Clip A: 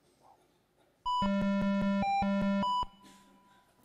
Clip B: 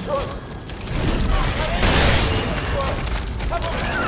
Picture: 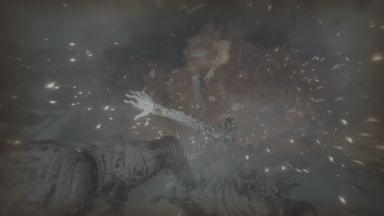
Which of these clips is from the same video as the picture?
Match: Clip B